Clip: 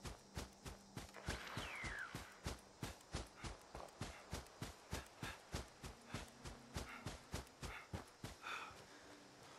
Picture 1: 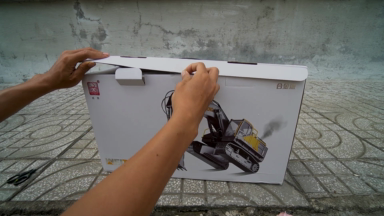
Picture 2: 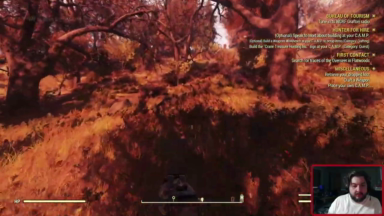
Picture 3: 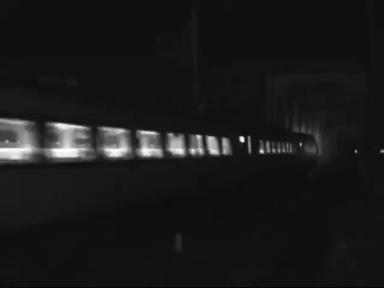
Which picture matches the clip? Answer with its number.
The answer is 2